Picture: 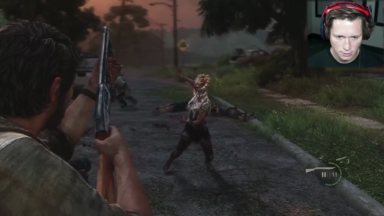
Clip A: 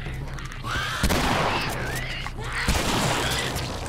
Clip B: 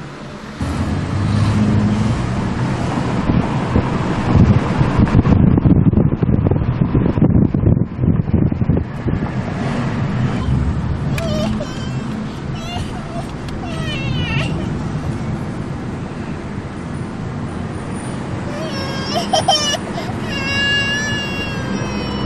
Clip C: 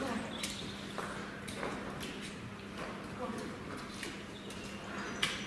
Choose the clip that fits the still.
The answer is A